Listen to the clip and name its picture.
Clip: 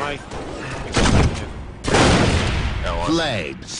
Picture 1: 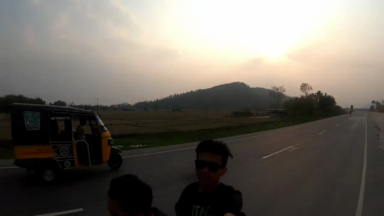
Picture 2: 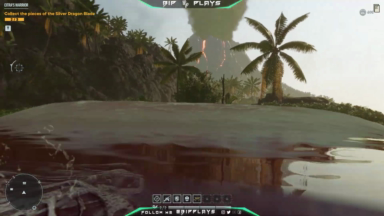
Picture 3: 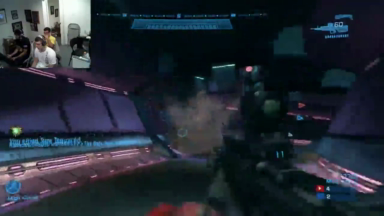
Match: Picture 3